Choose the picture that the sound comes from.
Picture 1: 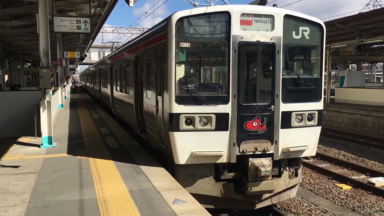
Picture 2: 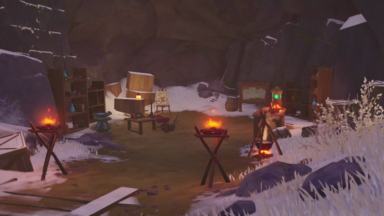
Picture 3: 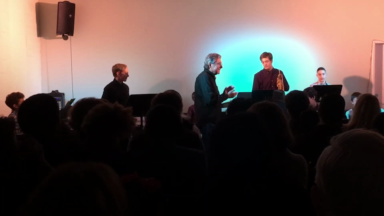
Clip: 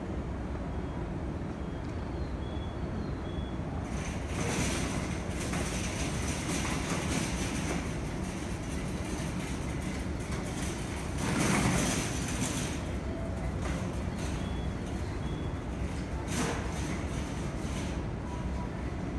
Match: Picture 1